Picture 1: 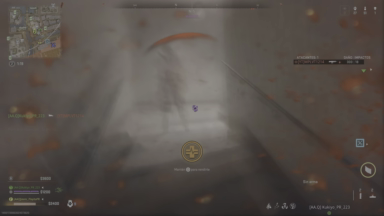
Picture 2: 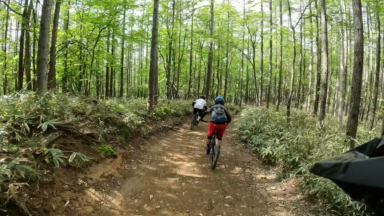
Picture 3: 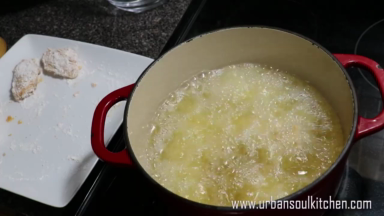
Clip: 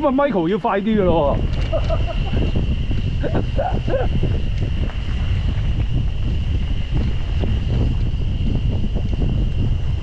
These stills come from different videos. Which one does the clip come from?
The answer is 2